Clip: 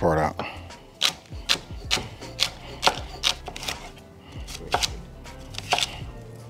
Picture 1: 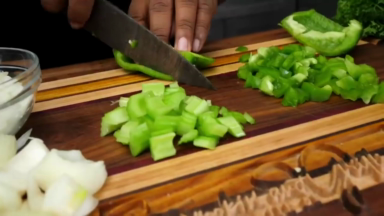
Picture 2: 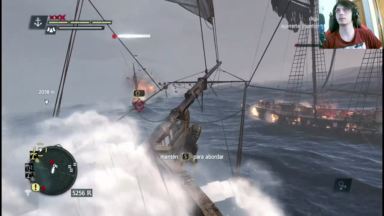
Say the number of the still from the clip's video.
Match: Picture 1